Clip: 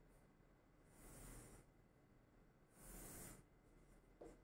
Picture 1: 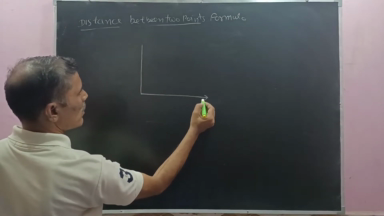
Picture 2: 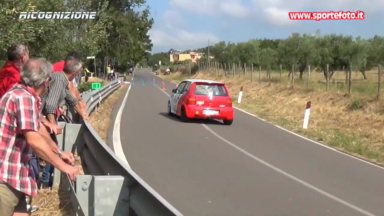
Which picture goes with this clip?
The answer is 1